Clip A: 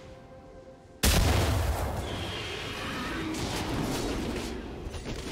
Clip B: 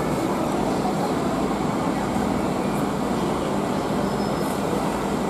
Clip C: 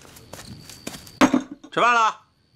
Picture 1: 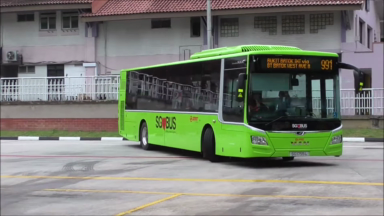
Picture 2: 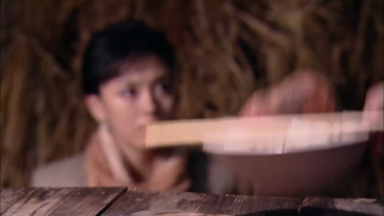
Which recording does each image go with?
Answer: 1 B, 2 C